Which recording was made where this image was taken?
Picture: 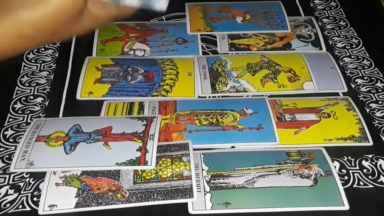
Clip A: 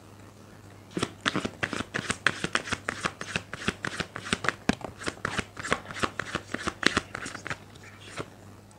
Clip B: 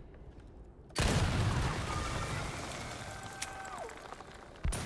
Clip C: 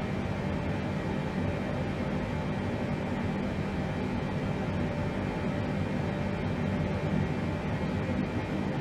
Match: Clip A